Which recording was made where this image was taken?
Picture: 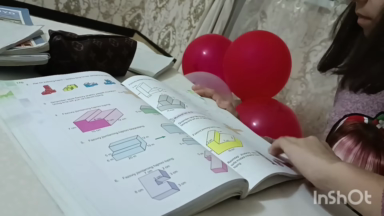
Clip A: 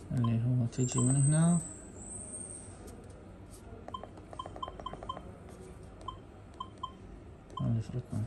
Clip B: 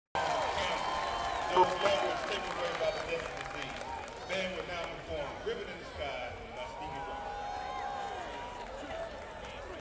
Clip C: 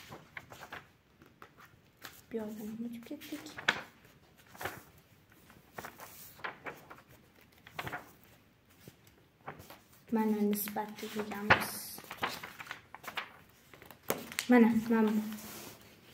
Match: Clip C